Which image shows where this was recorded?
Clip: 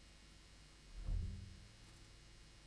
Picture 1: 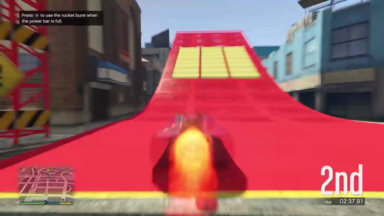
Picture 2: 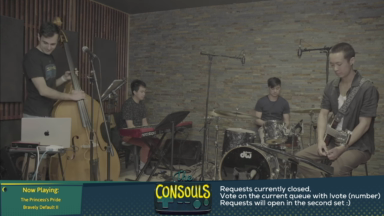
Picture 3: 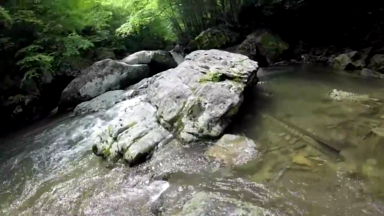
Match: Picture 2